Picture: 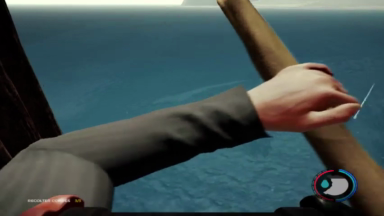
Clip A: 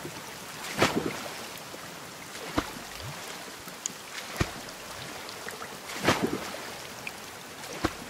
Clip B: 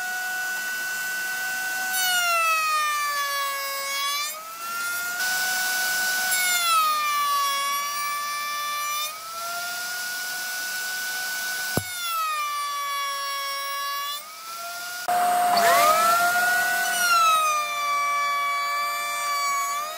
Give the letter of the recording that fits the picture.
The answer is A